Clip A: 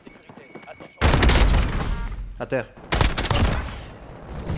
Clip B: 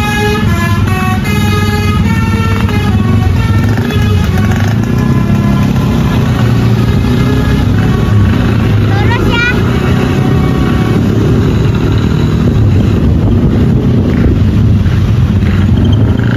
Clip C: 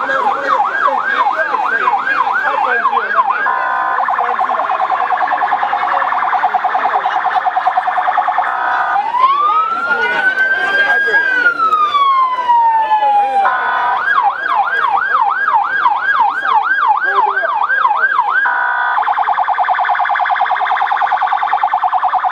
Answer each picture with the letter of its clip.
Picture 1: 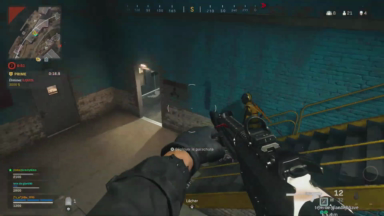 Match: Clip A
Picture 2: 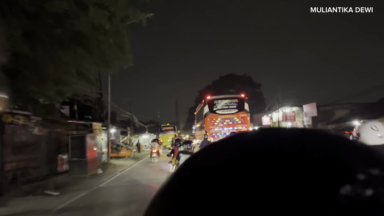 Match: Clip B